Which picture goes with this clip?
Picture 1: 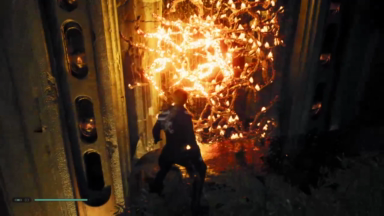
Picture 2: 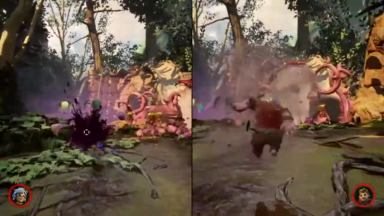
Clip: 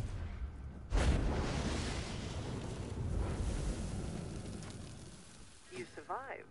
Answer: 1